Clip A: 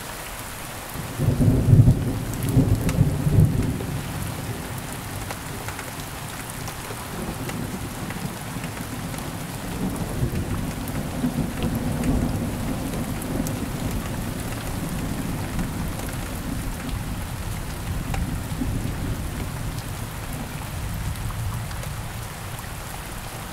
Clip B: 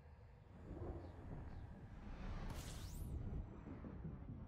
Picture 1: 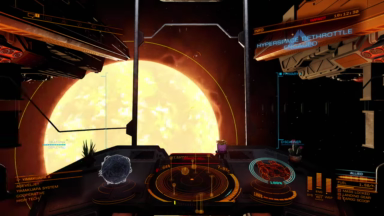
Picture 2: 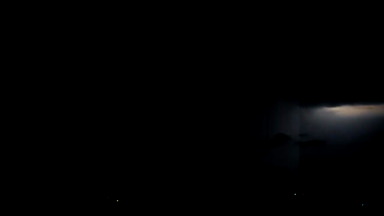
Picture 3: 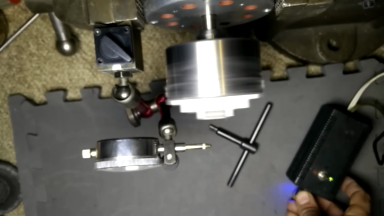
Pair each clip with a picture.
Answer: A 2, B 1